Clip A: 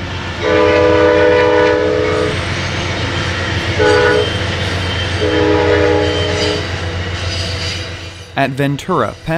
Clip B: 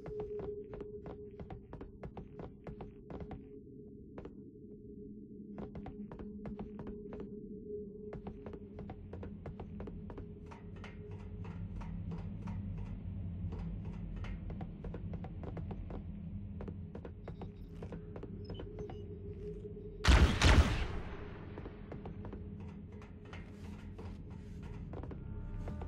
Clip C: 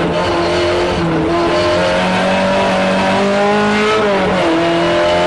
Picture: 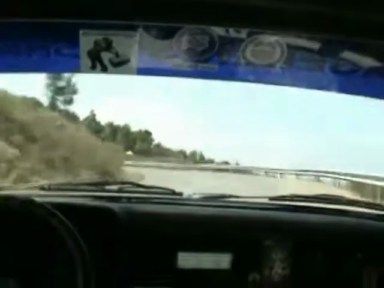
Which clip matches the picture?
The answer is C